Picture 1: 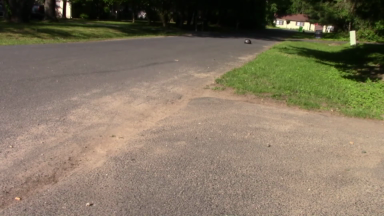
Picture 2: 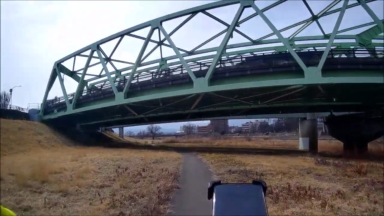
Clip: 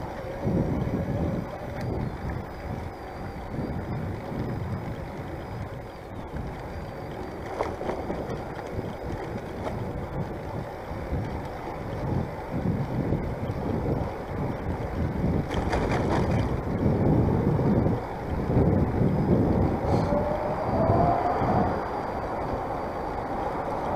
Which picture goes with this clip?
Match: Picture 2